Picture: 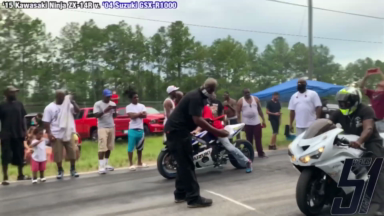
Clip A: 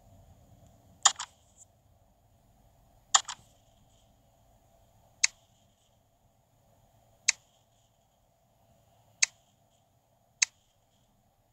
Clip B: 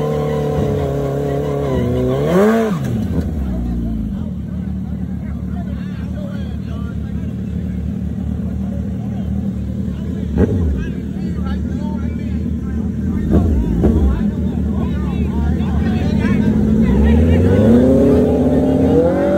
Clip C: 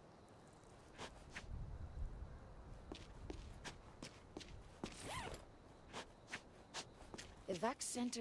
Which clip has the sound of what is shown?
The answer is B